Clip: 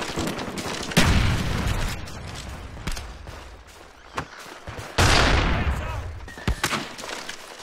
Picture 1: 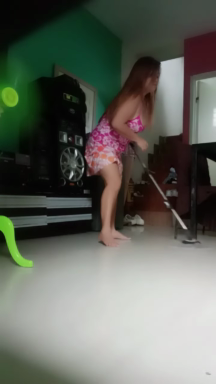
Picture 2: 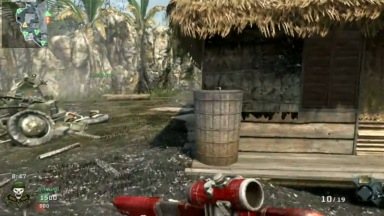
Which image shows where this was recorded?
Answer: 2